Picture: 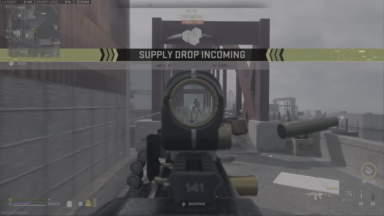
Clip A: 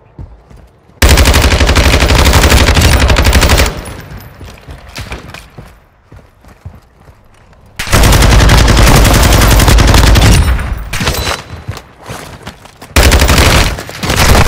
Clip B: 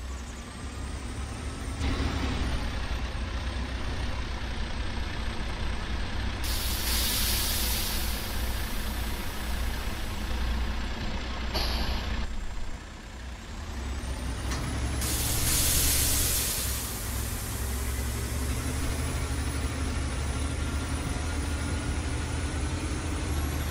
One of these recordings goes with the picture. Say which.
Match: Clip A